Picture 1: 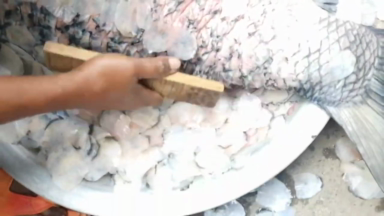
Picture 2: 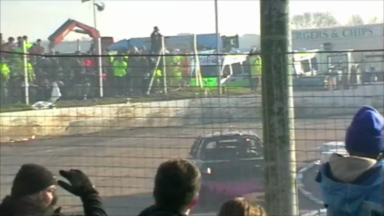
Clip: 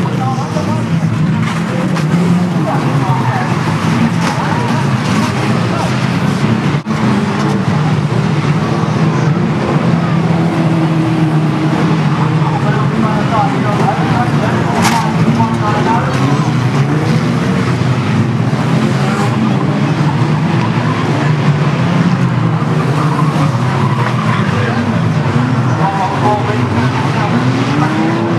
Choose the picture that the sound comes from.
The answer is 2